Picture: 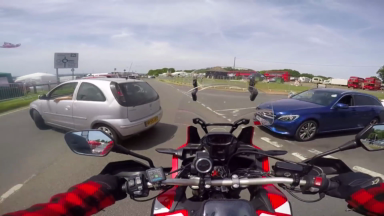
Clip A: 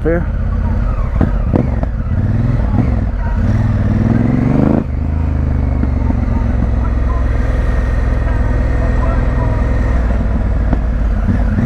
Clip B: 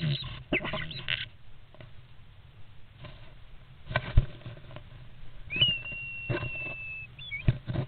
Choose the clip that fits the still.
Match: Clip A